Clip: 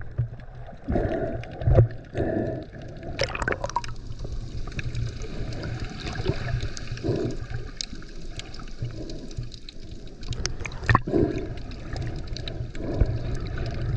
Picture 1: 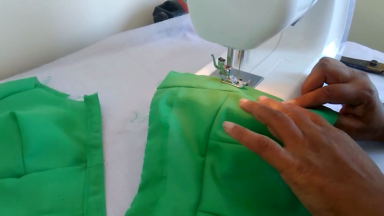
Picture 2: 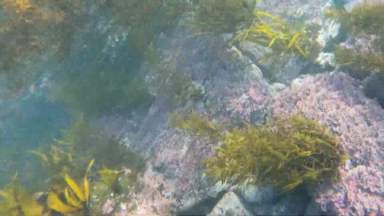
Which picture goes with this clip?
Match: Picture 2